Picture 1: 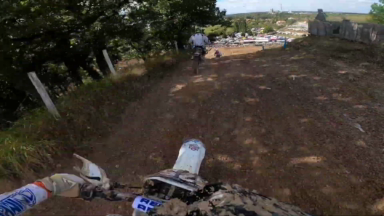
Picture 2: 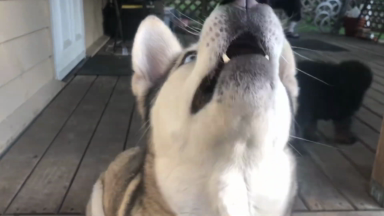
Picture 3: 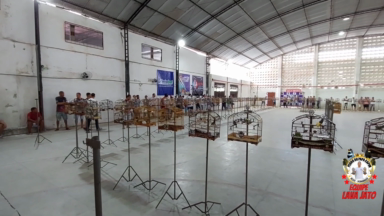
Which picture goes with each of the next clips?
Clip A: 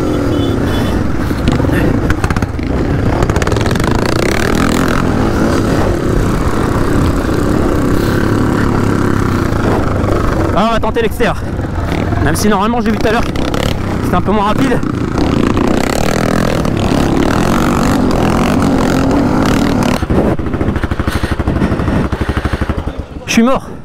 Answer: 1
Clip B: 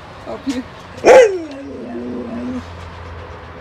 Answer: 2